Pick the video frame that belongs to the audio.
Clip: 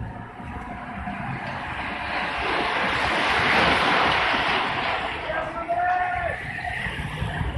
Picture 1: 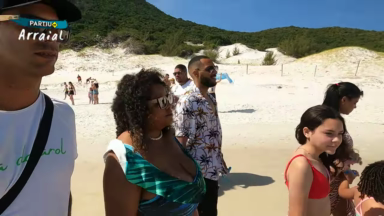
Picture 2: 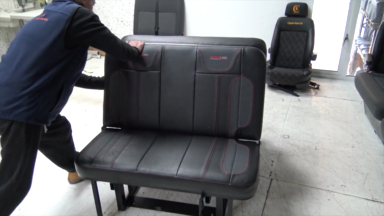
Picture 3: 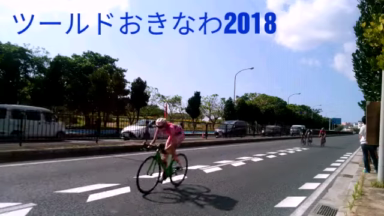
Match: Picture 3